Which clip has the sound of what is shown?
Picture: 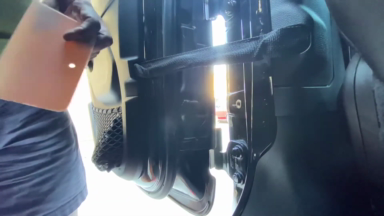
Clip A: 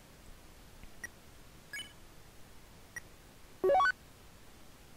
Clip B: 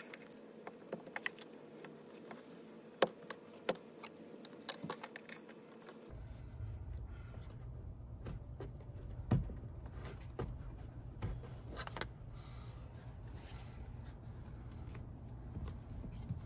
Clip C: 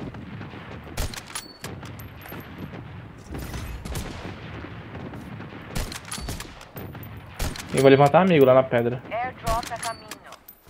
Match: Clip B